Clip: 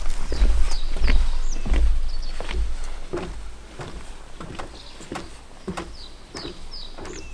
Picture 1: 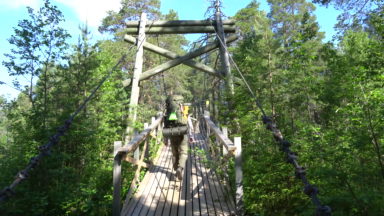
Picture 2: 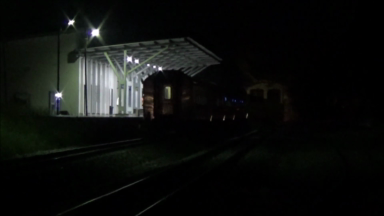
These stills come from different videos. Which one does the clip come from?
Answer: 1